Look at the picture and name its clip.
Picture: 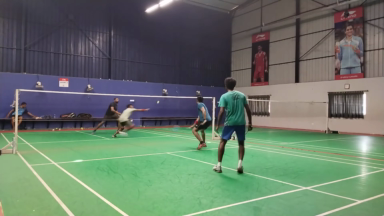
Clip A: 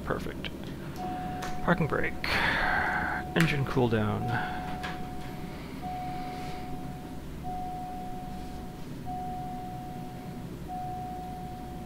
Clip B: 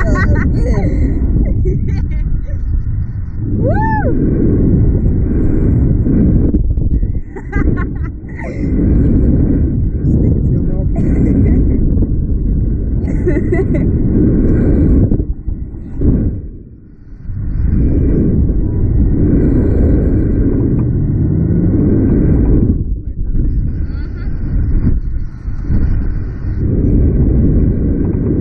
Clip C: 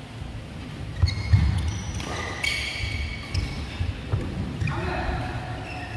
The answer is C